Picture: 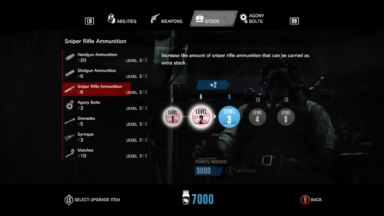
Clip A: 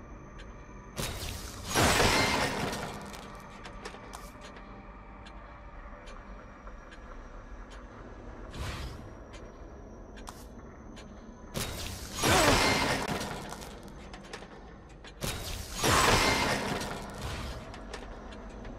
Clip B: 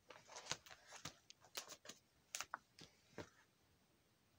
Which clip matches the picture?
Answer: A